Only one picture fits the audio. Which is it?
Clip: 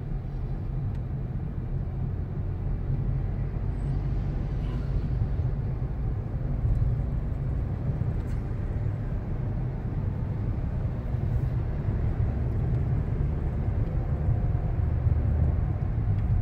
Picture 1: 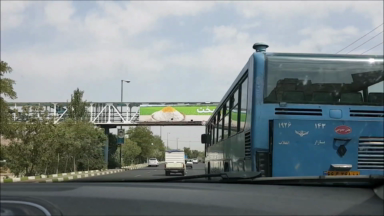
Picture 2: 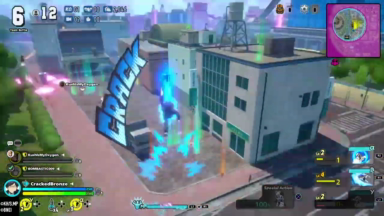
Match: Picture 1